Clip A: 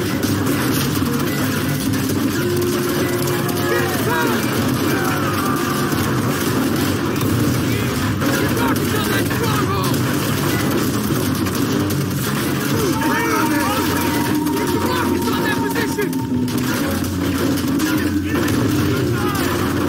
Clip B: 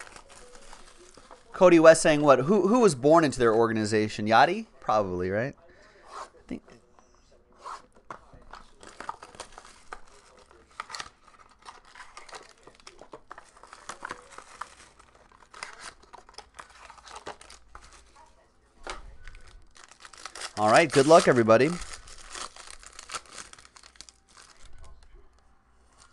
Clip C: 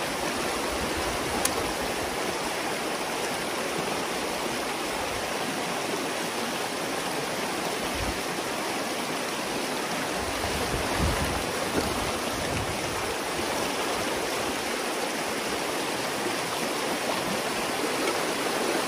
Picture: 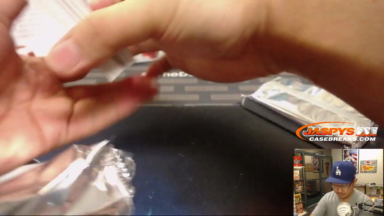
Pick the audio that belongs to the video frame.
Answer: B